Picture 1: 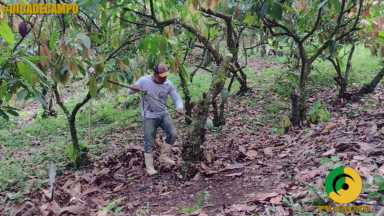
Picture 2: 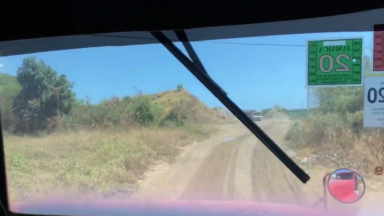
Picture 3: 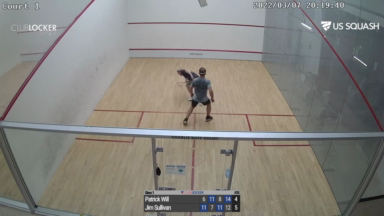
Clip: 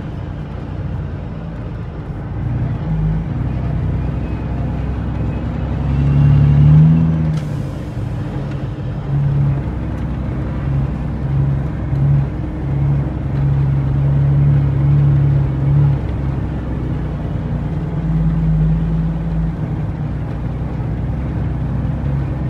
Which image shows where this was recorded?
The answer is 2